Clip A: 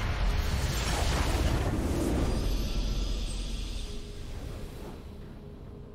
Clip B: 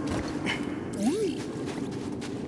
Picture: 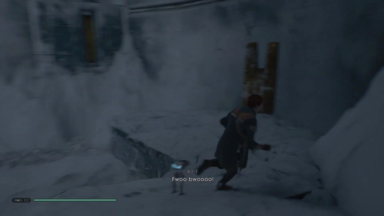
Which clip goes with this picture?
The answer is B